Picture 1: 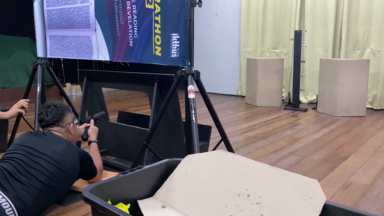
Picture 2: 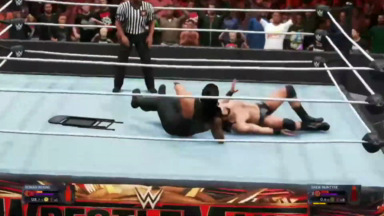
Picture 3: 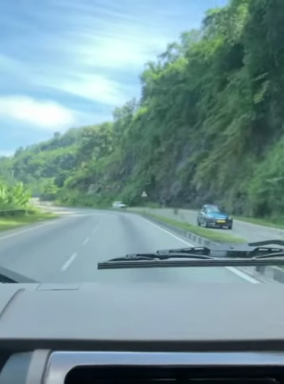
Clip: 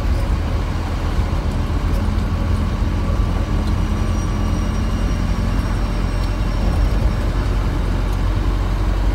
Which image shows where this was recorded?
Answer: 3